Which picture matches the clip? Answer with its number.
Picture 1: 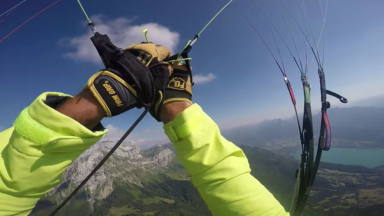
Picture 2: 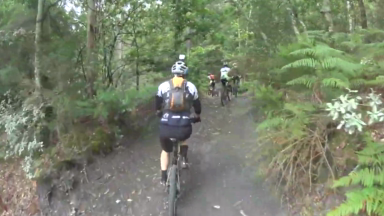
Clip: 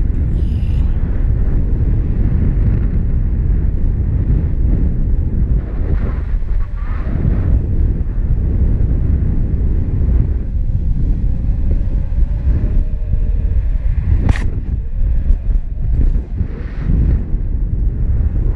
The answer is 1